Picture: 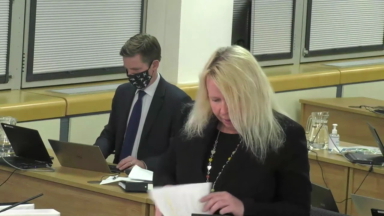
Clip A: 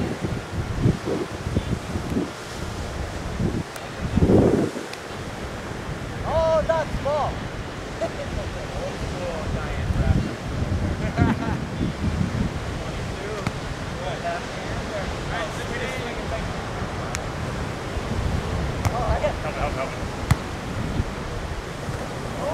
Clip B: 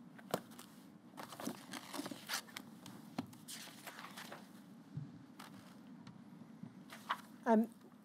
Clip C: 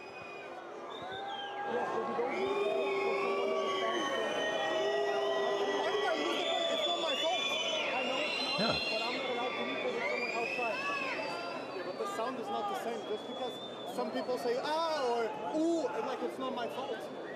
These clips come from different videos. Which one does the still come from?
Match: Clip B